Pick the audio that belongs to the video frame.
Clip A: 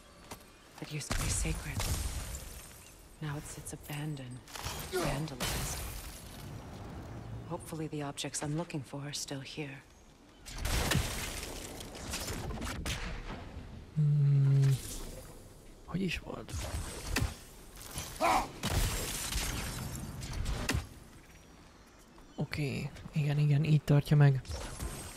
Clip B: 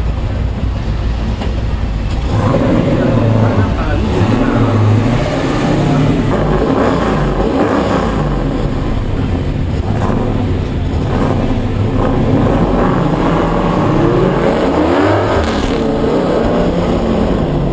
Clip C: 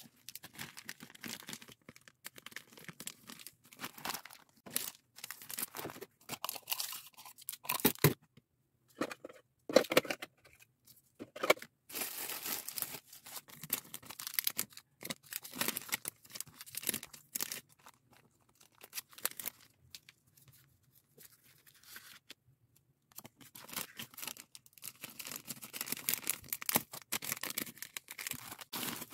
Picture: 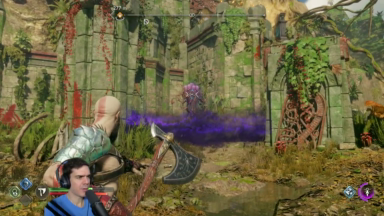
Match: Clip A